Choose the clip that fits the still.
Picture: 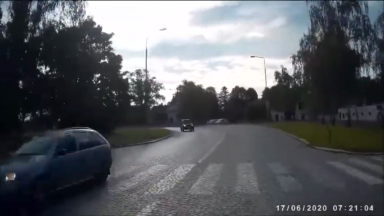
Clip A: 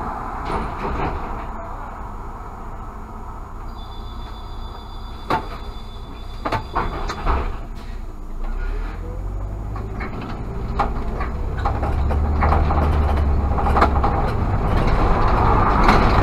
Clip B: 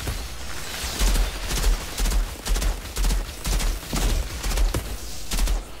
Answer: A